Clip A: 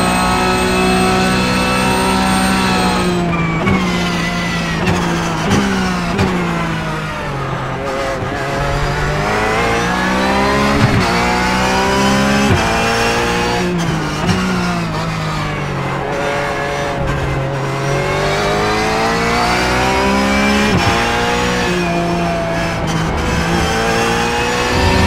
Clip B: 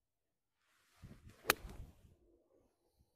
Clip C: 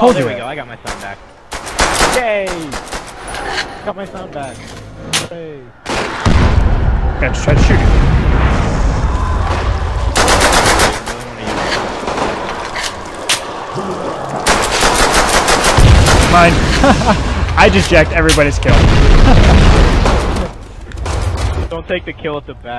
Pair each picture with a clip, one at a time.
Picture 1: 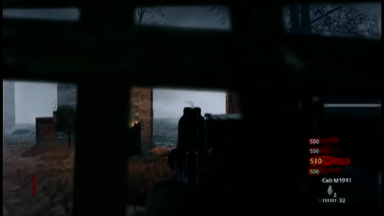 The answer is C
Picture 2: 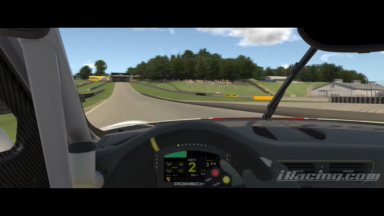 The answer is A